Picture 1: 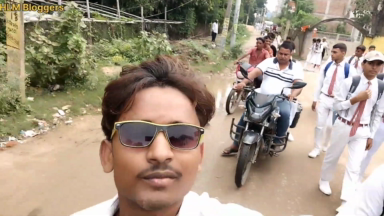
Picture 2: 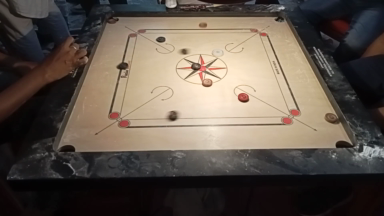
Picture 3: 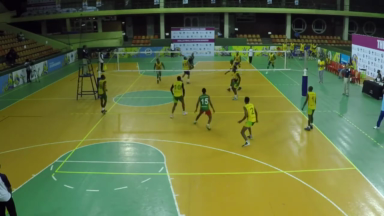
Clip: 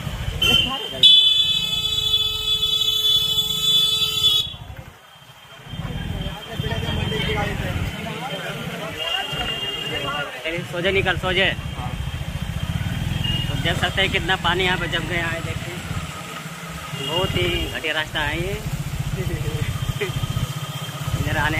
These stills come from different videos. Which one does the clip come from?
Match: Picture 1